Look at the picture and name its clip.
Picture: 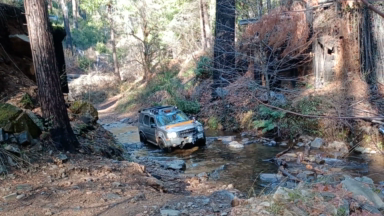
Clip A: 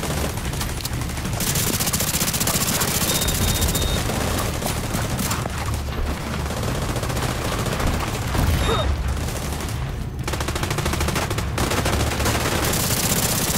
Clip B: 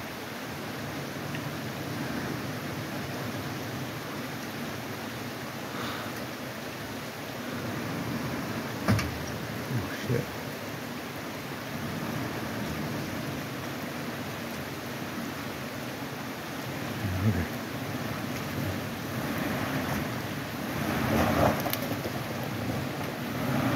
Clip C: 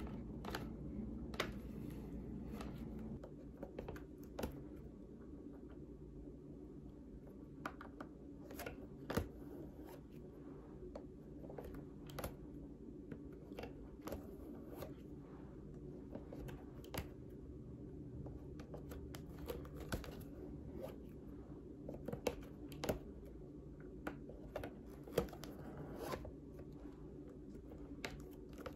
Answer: B